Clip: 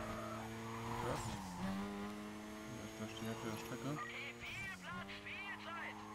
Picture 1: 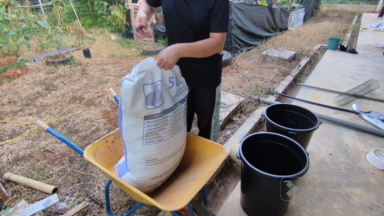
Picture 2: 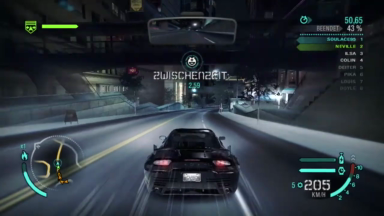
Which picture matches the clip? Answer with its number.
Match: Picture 2